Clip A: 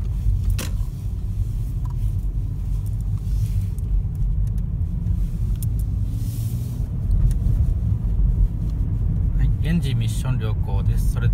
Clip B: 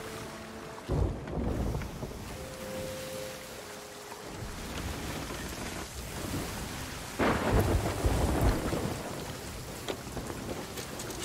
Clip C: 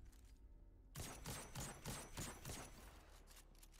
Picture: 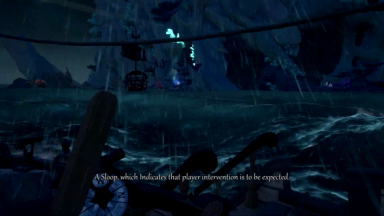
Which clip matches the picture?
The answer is B